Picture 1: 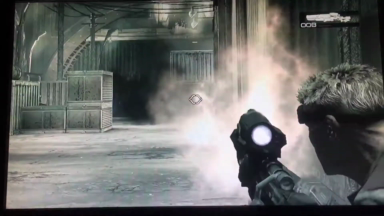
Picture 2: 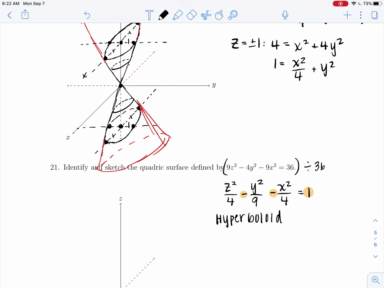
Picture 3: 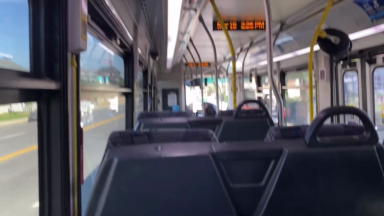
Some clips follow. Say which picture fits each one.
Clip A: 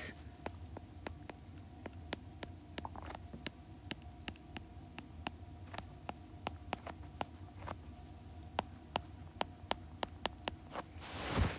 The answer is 2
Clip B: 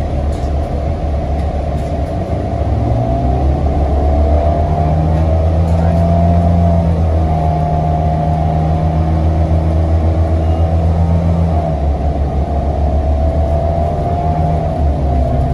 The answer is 3